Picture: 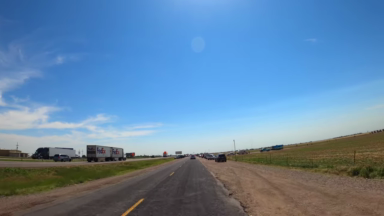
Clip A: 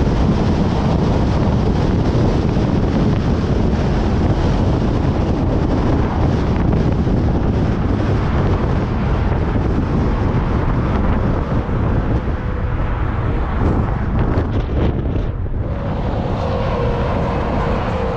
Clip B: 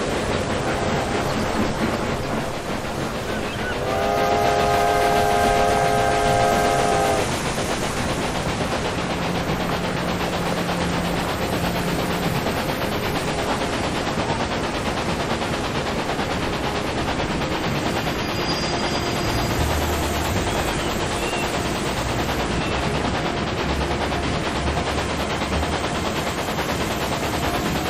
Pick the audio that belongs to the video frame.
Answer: A